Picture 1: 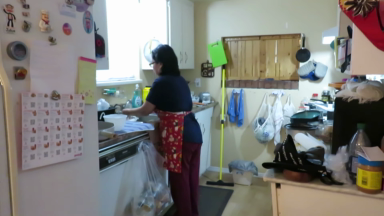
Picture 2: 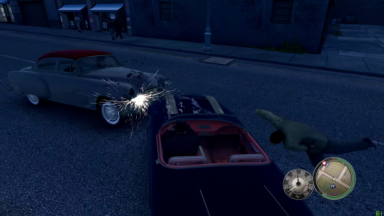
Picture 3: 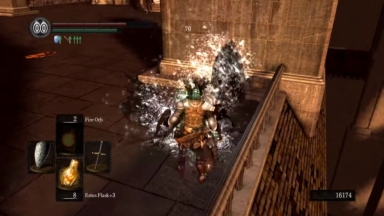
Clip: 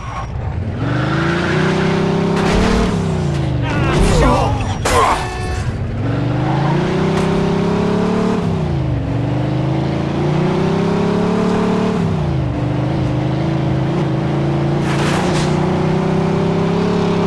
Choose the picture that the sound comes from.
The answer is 2